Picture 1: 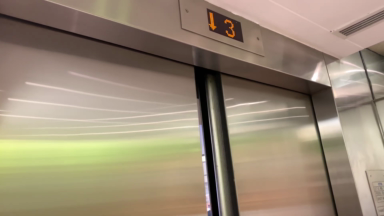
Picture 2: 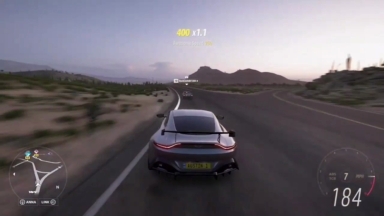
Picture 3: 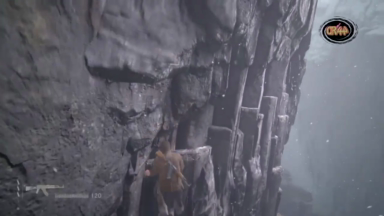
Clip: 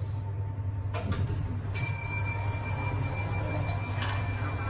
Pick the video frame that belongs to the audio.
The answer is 1